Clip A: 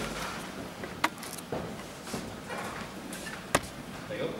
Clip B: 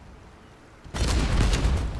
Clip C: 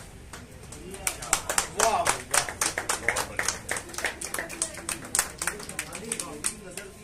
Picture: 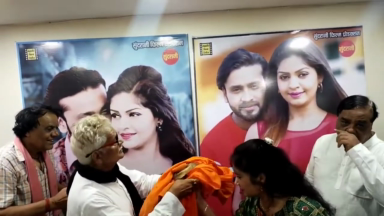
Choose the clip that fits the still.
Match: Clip C